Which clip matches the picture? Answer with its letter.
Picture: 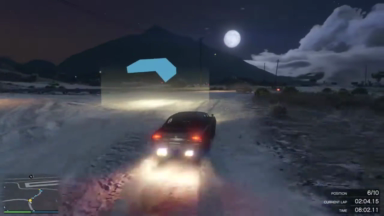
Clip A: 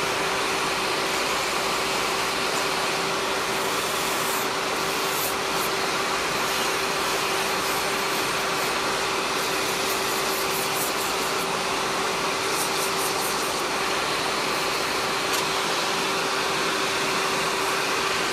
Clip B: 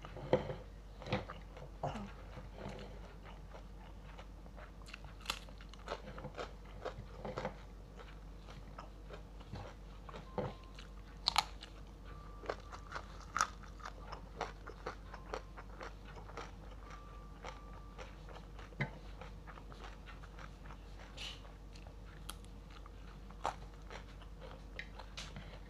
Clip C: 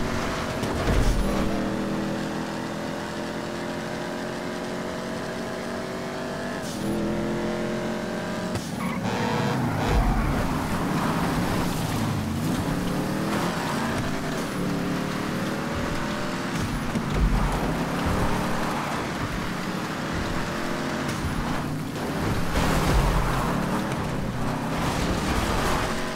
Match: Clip C